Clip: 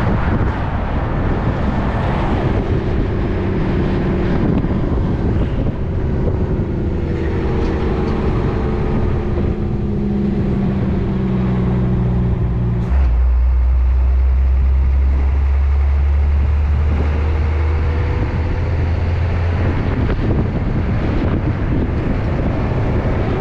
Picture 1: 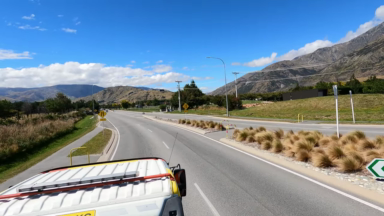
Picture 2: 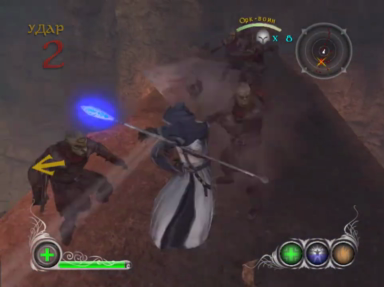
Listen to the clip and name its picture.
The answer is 1